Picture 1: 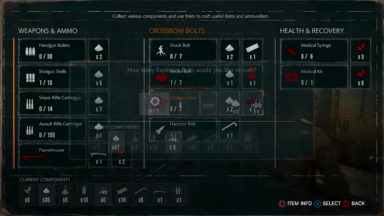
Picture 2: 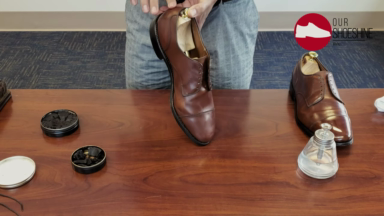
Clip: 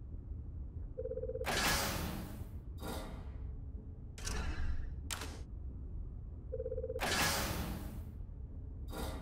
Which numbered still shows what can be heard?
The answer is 1